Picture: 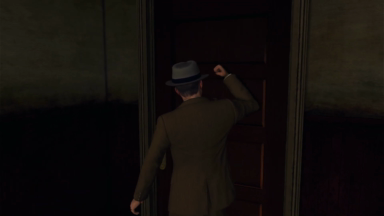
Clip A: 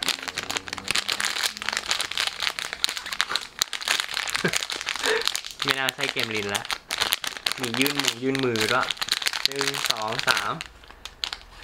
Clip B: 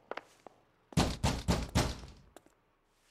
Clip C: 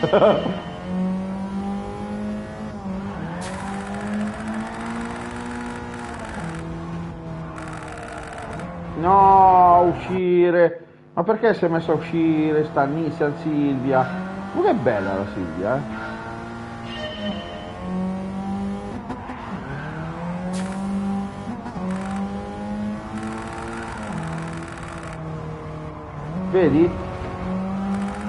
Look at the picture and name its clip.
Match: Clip B